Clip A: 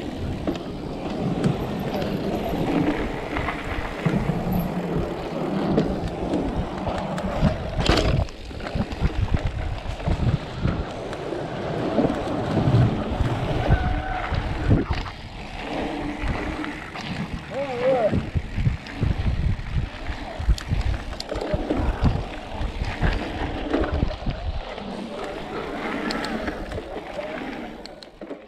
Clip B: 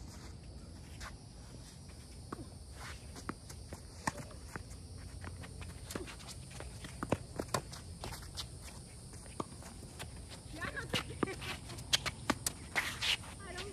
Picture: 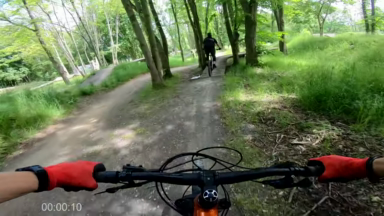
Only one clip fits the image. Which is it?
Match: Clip A